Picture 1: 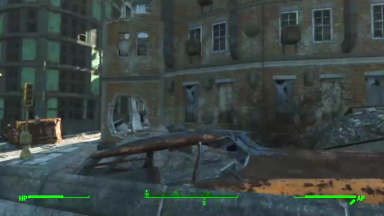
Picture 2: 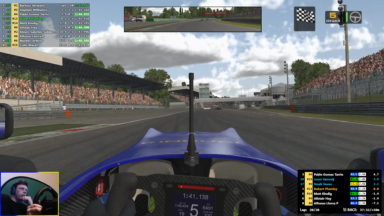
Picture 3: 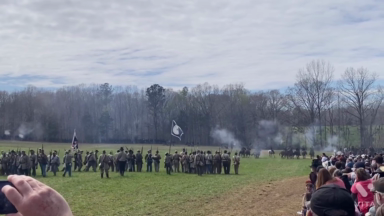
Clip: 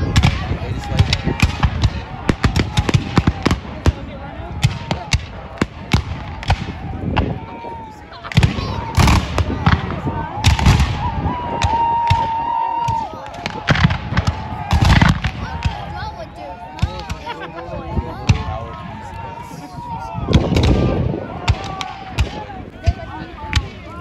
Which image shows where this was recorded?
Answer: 3